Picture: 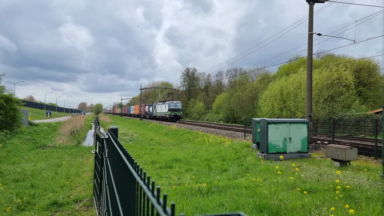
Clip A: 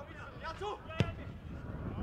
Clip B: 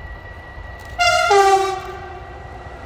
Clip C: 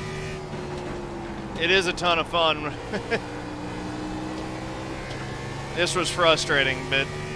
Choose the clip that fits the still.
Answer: B